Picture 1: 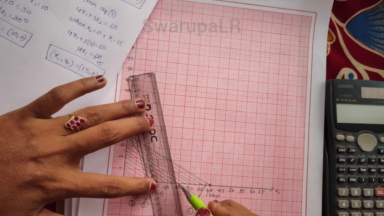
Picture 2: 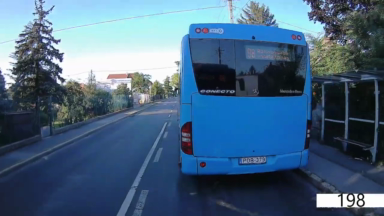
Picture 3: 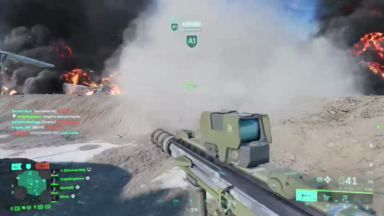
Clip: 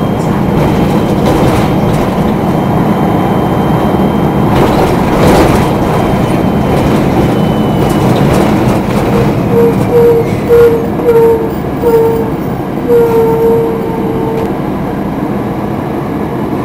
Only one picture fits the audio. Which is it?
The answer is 2